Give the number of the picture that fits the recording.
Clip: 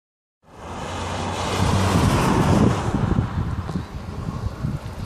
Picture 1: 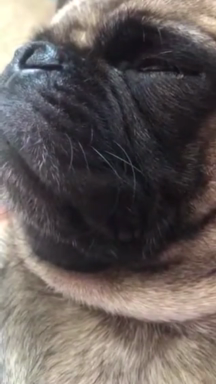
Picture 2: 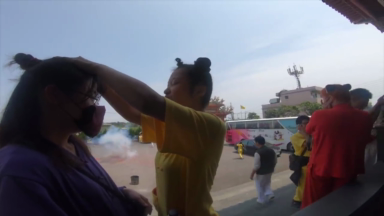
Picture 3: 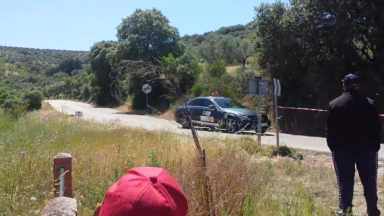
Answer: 3